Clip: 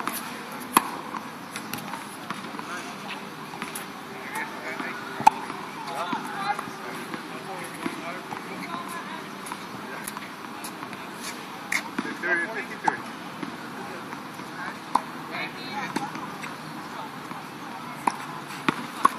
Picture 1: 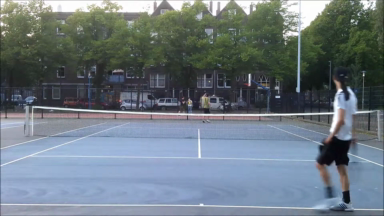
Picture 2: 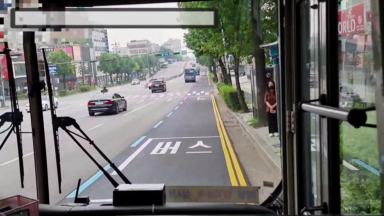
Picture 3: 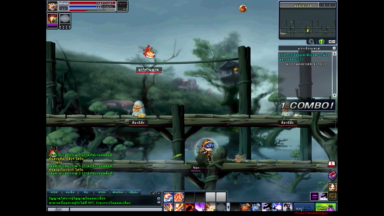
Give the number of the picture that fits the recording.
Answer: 1